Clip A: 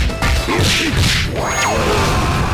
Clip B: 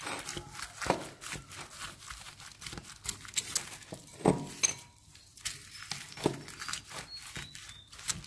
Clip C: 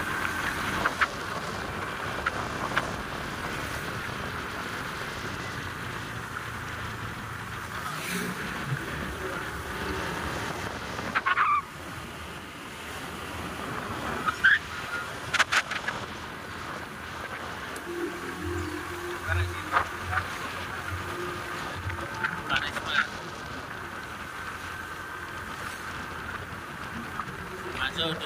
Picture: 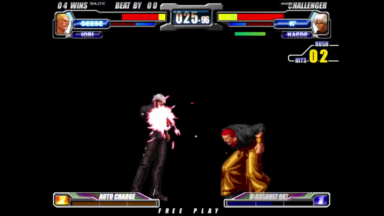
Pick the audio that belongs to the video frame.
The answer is A